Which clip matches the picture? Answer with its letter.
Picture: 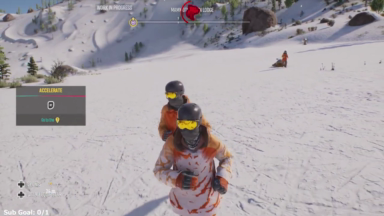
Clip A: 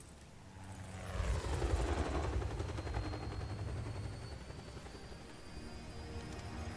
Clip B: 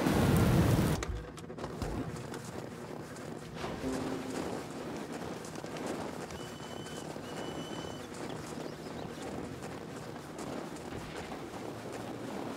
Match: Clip B